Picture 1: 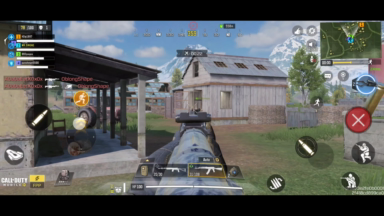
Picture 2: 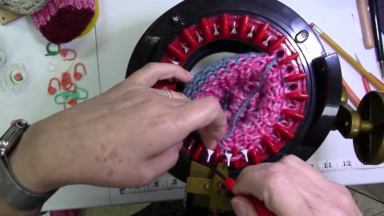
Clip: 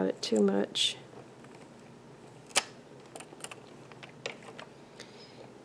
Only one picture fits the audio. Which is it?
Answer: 2